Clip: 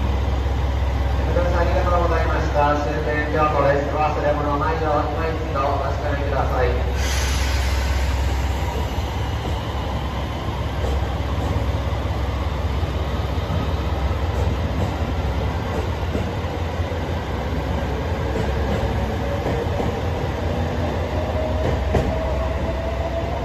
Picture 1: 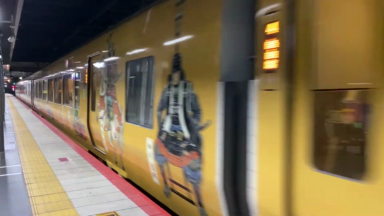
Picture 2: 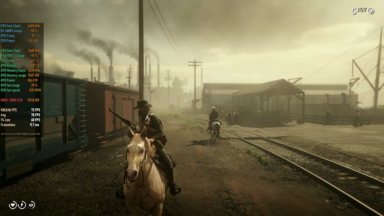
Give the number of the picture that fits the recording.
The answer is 1